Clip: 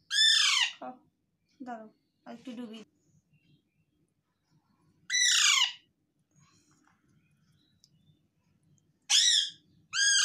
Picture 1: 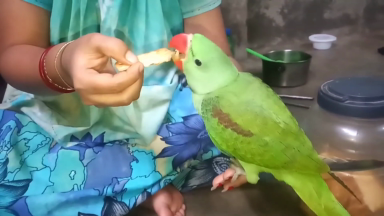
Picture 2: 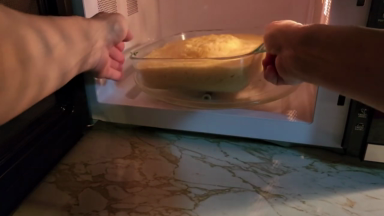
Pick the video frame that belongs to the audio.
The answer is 1